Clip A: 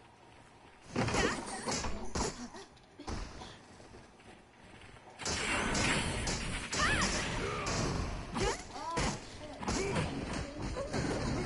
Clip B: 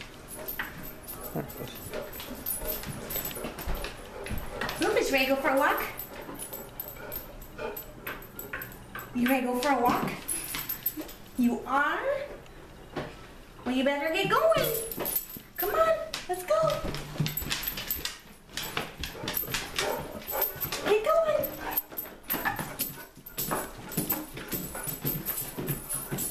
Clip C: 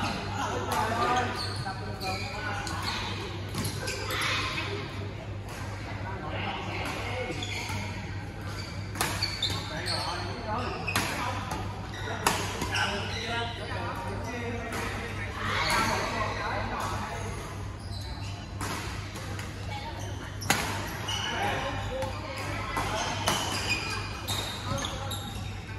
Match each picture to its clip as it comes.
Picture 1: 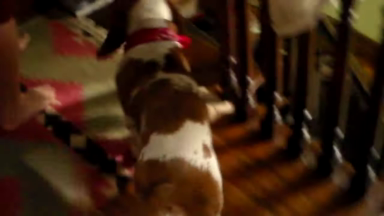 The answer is B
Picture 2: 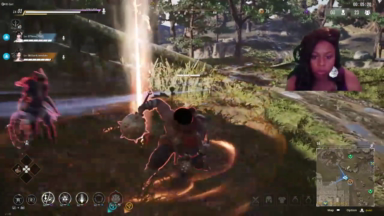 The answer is A